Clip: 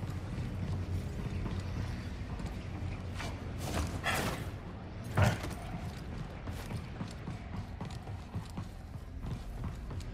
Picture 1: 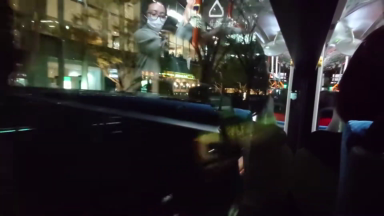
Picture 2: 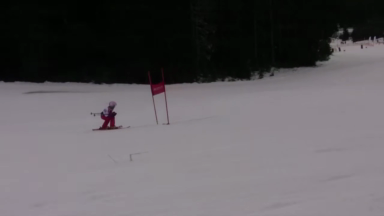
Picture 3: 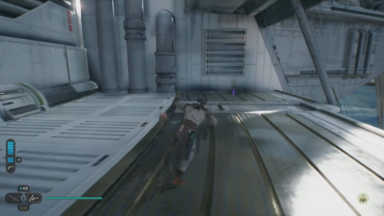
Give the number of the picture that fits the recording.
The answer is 3